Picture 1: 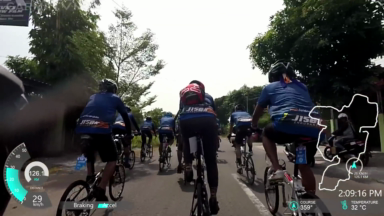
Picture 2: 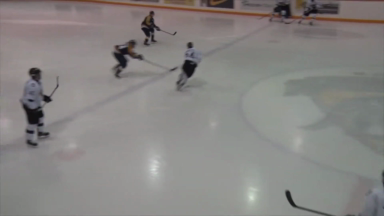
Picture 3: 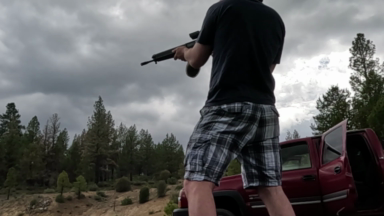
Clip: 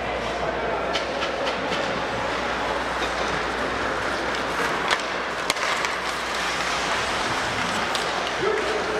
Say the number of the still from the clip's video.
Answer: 2